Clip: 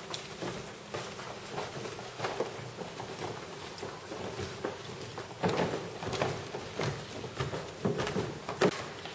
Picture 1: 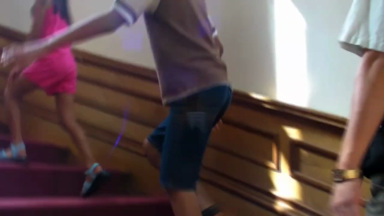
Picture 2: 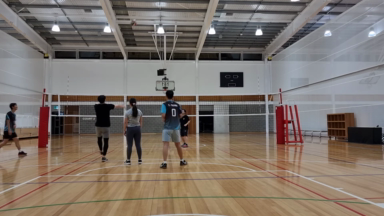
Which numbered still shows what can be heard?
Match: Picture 1